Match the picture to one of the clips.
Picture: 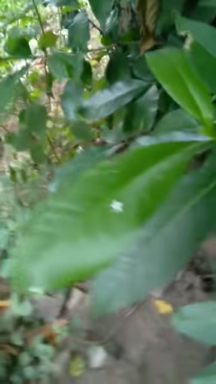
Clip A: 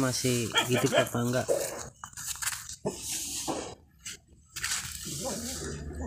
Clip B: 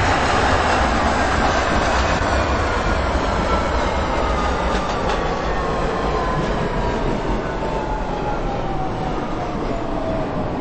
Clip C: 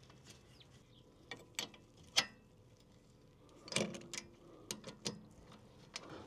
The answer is A